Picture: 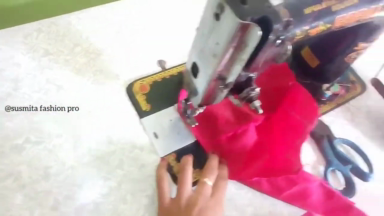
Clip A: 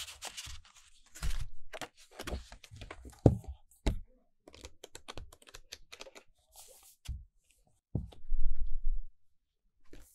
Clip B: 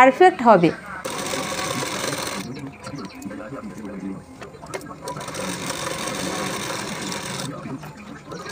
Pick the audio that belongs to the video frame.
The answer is B